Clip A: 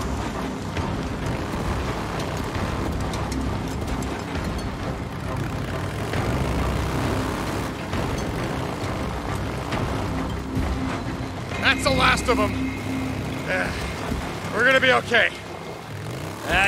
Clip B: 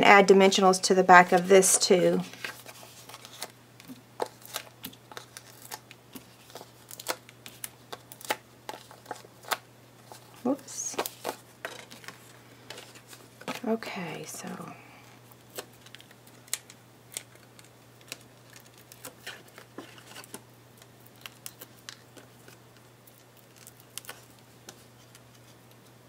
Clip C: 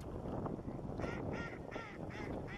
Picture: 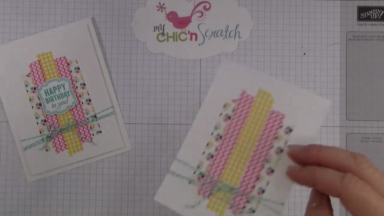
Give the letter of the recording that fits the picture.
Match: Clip B